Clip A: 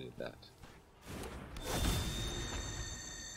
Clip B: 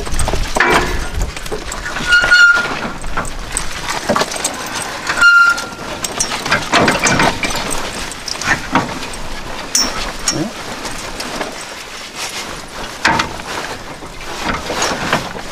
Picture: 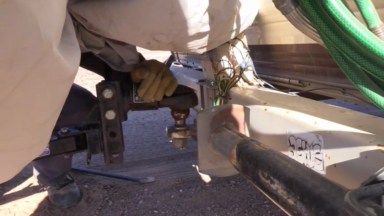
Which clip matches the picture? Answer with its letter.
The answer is B